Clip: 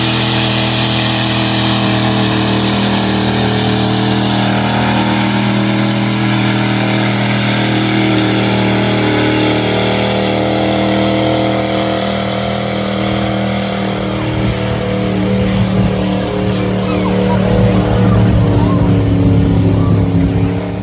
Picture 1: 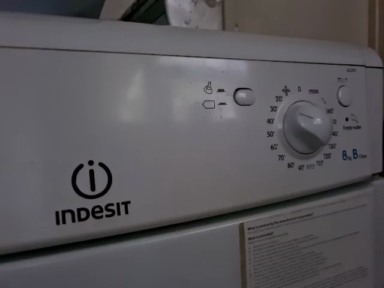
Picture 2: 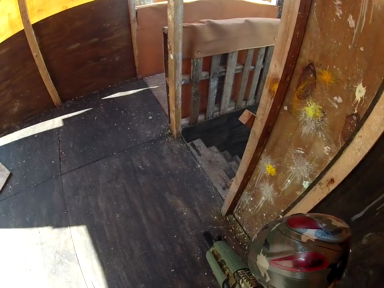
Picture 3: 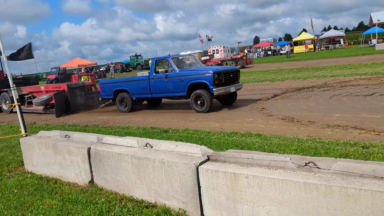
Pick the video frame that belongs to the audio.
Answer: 3